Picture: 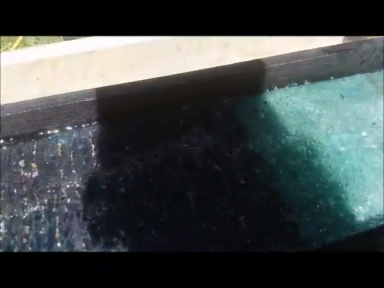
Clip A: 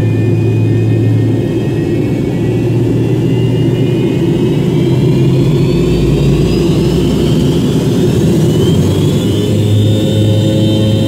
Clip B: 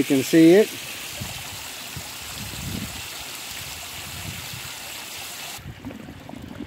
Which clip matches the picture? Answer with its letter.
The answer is B